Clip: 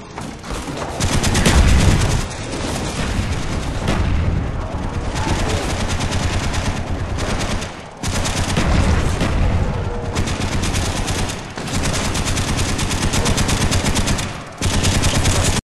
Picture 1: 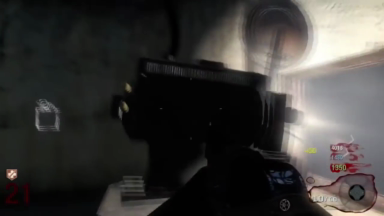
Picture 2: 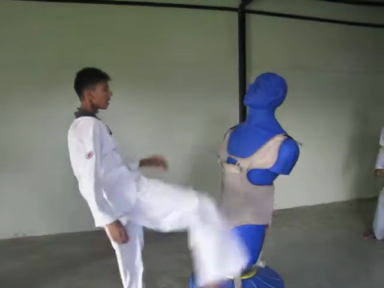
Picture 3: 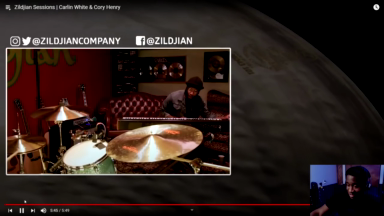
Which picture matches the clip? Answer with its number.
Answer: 1